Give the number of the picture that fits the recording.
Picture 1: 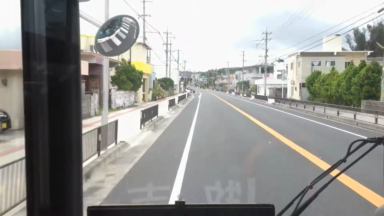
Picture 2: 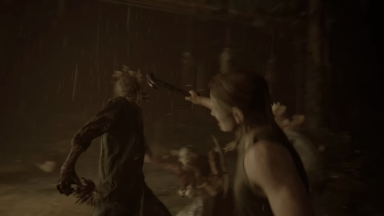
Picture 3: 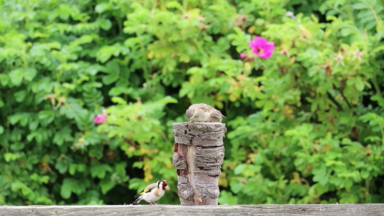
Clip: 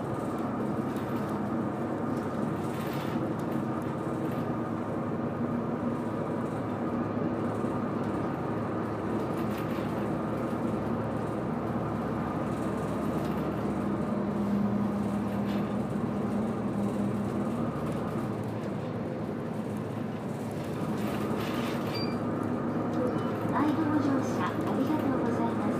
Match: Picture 1